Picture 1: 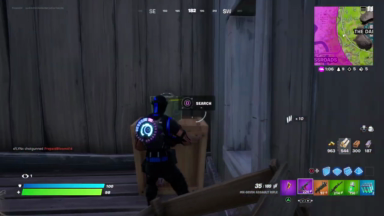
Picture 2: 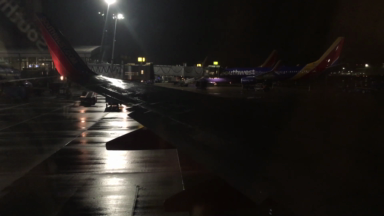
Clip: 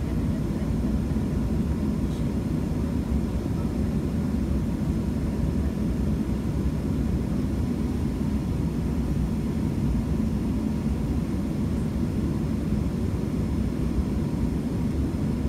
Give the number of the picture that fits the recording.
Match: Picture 2